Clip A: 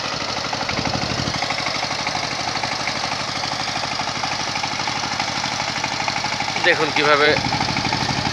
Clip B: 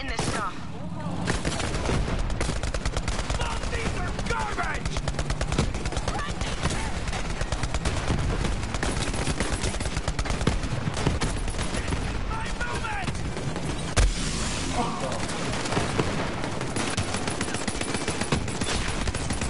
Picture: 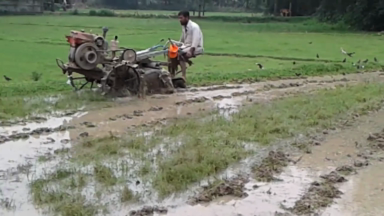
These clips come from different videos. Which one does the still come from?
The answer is A